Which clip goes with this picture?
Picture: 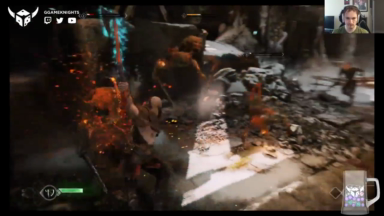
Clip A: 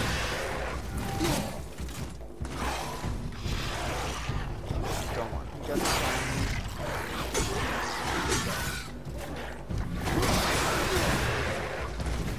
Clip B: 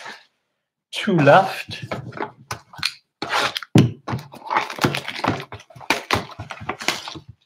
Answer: A